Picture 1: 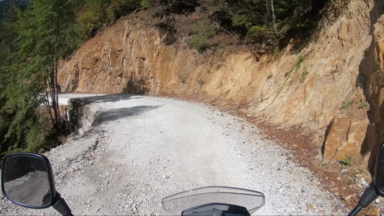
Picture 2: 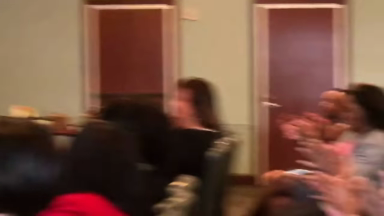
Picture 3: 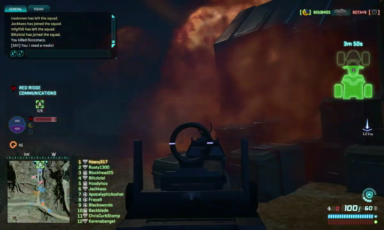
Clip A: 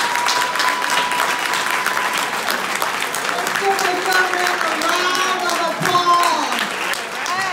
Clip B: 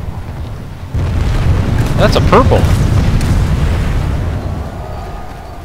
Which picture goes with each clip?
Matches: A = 2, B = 3